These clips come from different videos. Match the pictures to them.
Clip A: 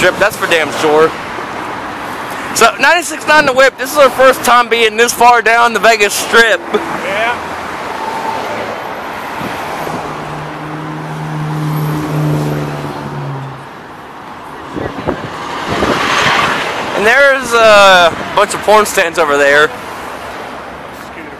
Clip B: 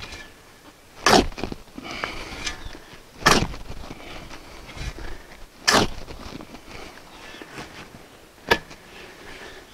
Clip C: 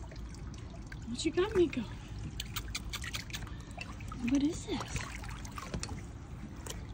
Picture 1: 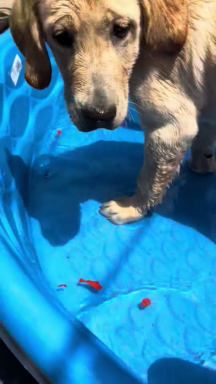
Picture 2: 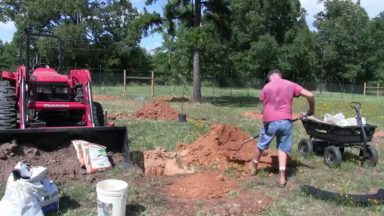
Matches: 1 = C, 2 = B